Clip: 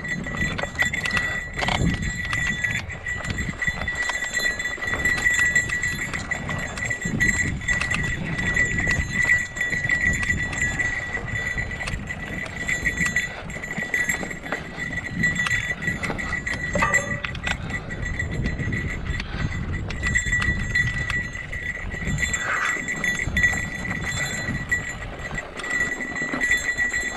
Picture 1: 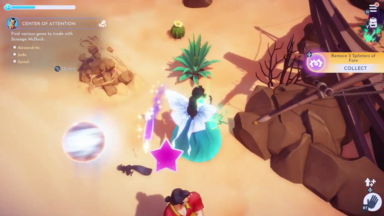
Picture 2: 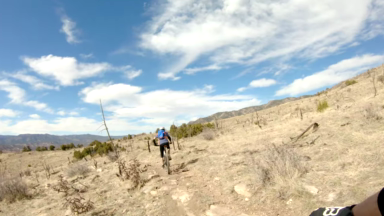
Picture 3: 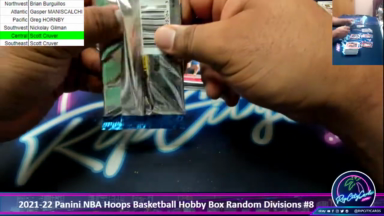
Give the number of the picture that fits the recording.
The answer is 2